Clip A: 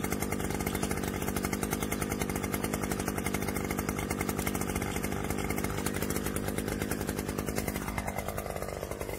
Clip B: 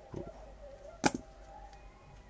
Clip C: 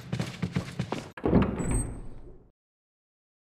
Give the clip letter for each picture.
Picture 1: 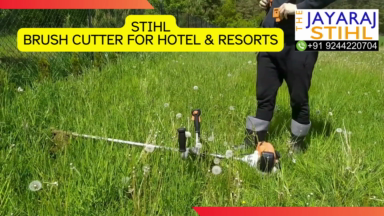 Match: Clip A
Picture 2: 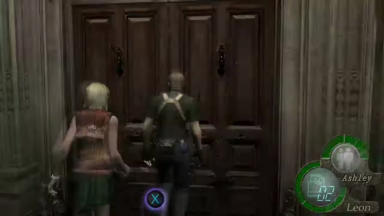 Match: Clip C